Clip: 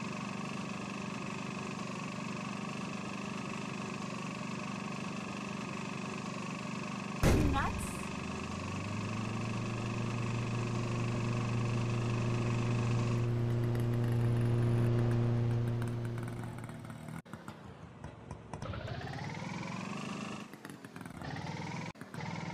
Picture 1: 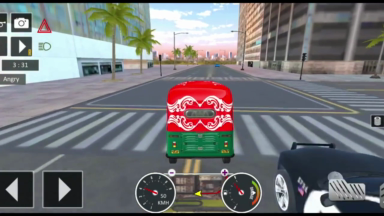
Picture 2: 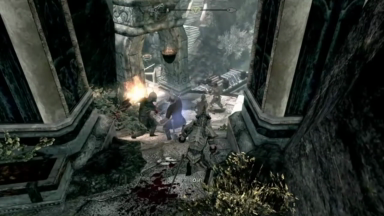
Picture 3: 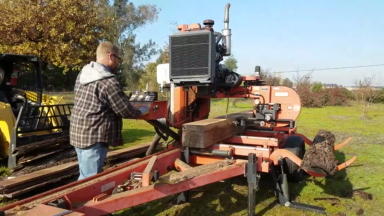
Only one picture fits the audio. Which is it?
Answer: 1